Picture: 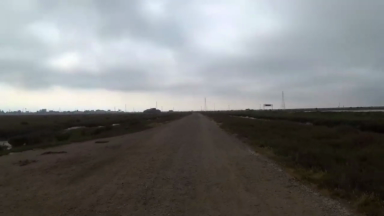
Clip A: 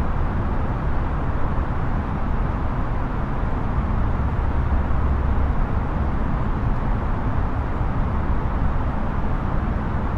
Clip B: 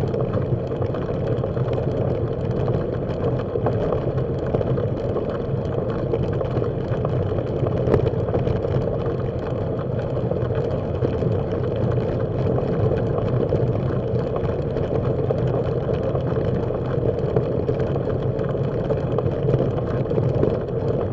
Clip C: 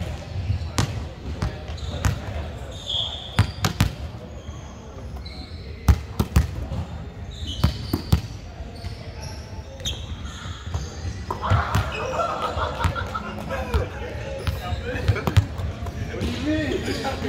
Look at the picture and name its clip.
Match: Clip B